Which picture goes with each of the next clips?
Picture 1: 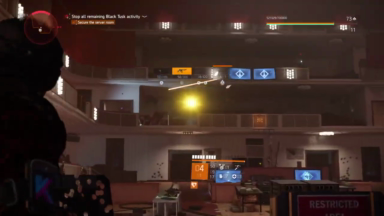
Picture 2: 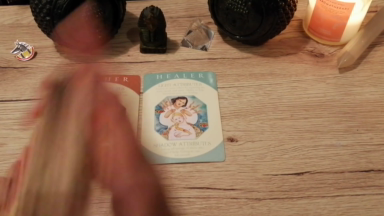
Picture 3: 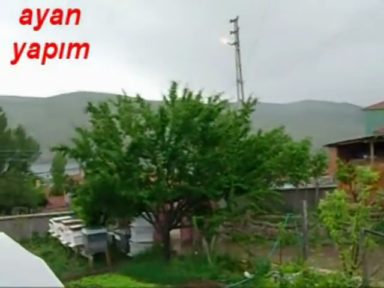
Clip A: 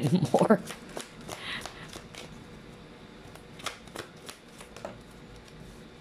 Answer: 2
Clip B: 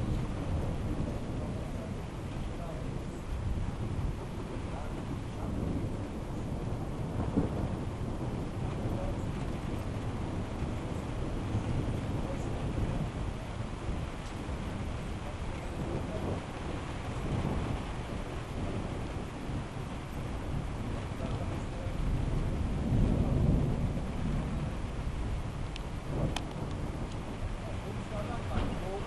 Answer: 3